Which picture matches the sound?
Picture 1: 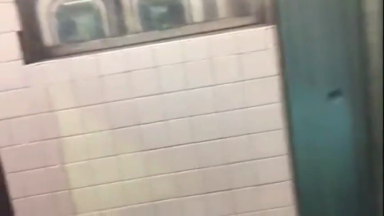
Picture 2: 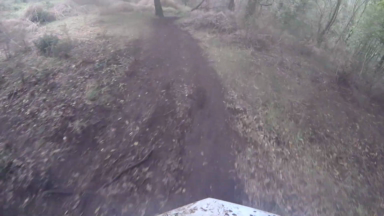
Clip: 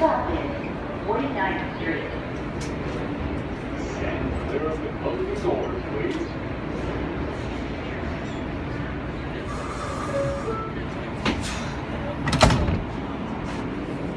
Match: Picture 1